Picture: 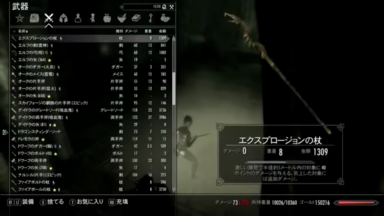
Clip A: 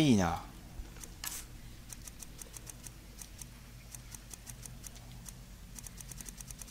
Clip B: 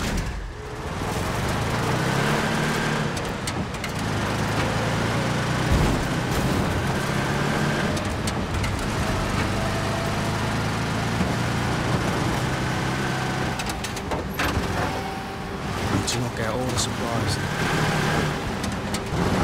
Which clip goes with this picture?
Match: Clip A